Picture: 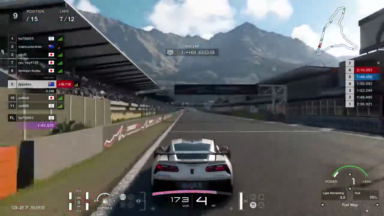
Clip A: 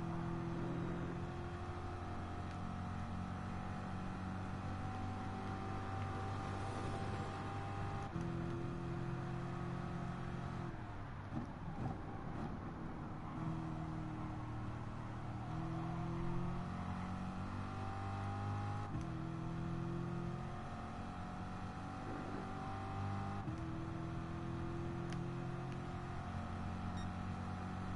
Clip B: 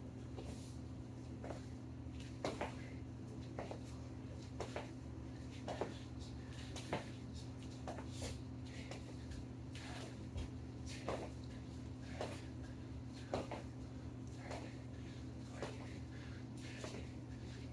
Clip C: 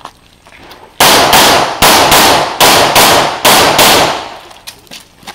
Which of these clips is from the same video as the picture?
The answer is A